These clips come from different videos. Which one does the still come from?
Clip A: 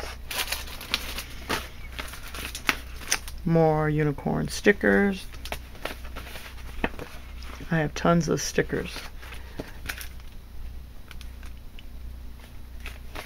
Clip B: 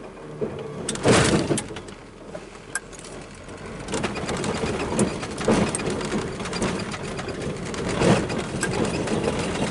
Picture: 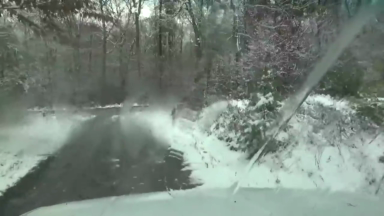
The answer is B